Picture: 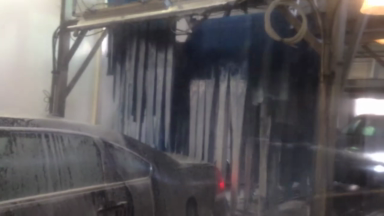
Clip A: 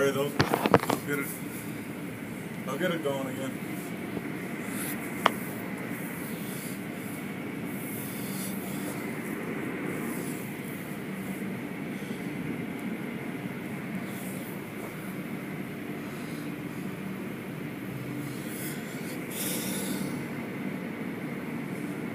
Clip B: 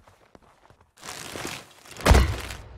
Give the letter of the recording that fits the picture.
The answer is A